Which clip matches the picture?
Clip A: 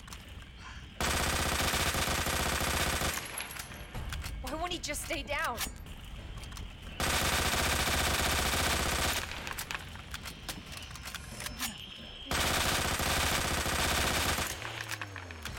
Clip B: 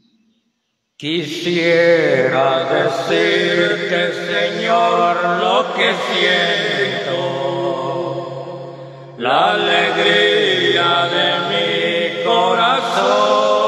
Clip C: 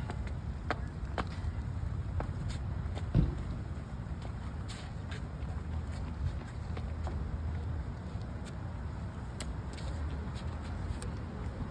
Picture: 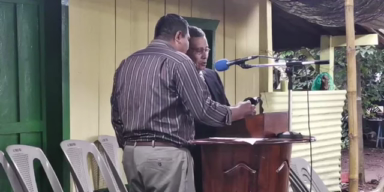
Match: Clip B